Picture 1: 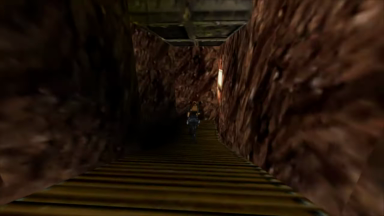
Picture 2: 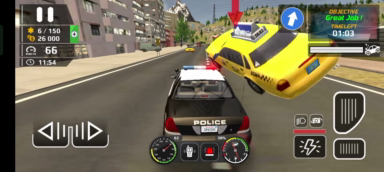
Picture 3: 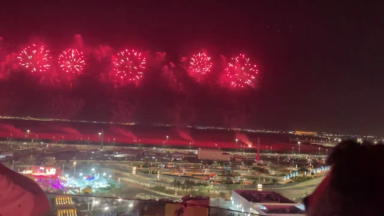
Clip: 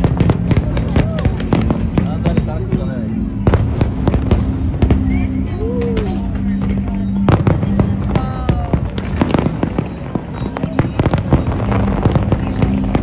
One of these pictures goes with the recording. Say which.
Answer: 3